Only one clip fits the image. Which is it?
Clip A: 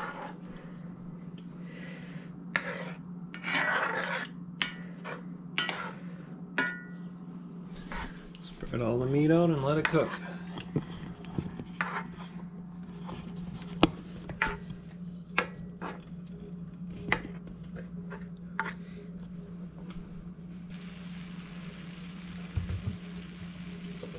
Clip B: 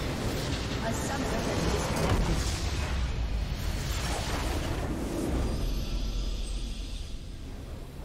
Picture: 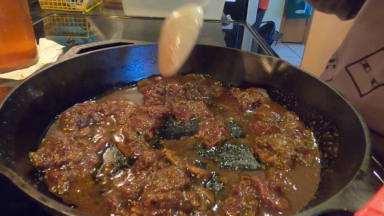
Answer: A